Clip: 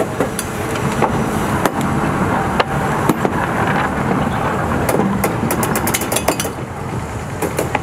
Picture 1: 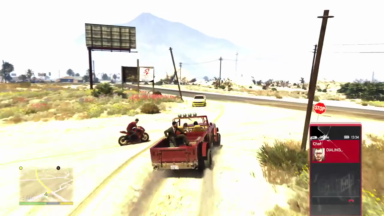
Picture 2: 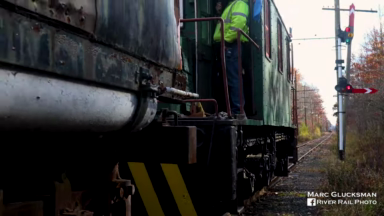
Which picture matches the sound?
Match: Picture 2